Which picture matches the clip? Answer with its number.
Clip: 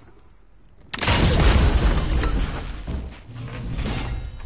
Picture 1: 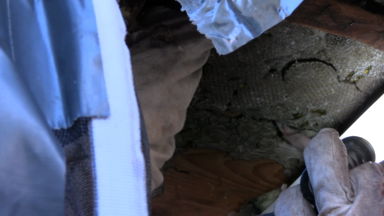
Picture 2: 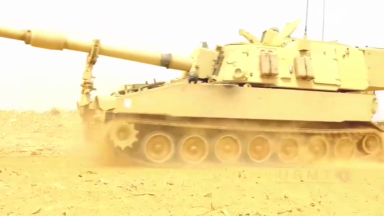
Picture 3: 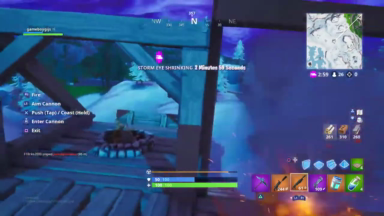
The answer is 3